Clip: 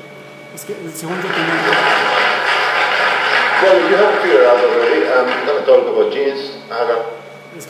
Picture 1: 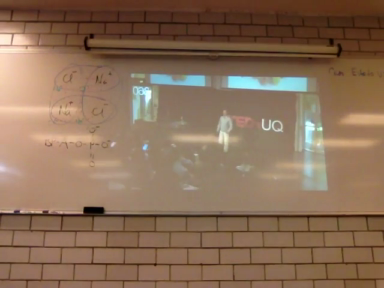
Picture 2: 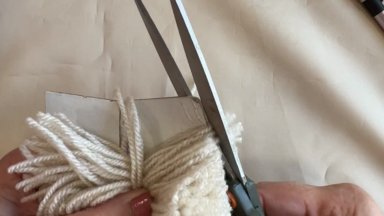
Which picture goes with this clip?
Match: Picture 1